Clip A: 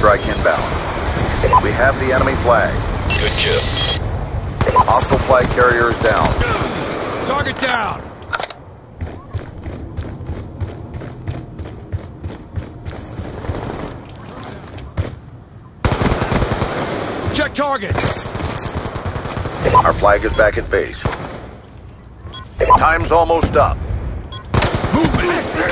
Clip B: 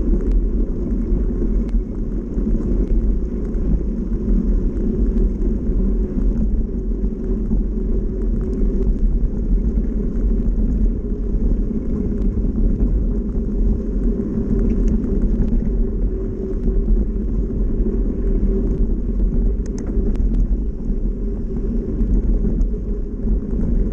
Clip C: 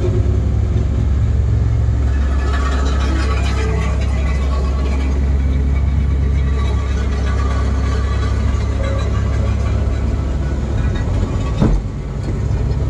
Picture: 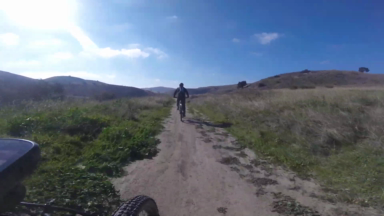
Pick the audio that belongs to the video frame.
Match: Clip B